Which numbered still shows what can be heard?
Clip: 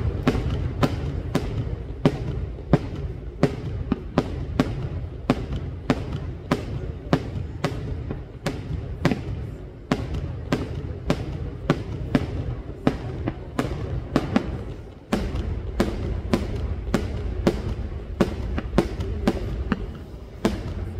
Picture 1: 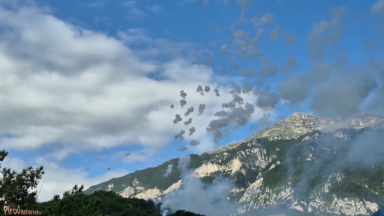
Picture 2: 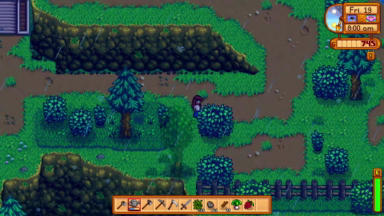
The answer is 1